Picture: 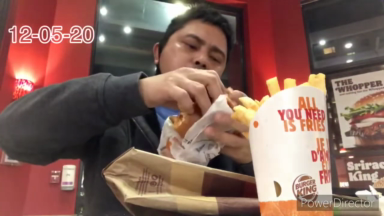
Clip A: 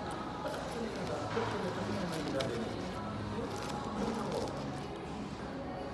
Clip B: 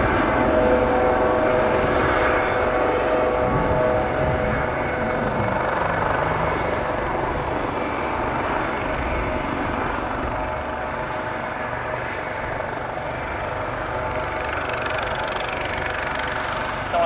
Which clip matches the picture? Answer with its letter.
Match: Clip A